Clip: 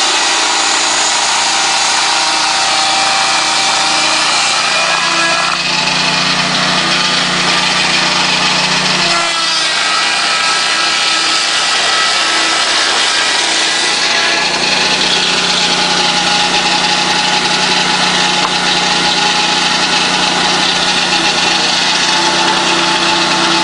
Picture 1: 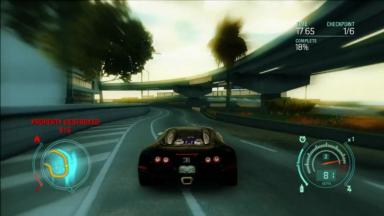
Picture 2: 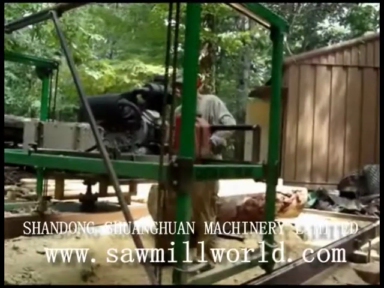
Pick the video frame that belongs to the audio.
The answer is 2